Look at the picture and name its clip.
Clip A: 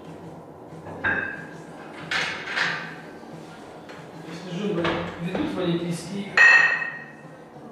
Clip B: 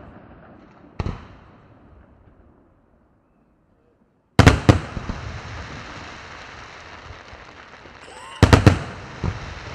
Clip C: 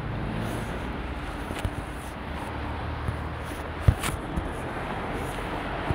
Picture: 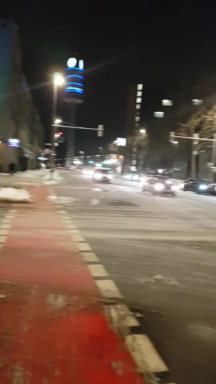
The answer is C